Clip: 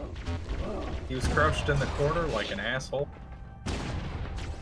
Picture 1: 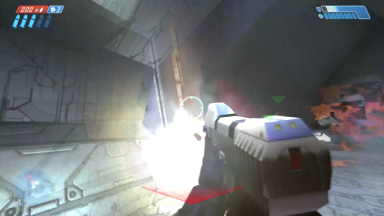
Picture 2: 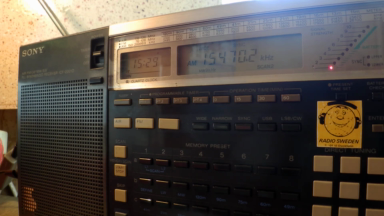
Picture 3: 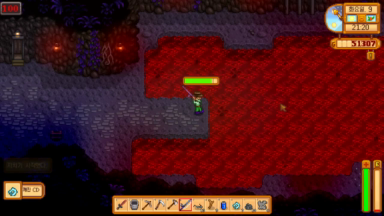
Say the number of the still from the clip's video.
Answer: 1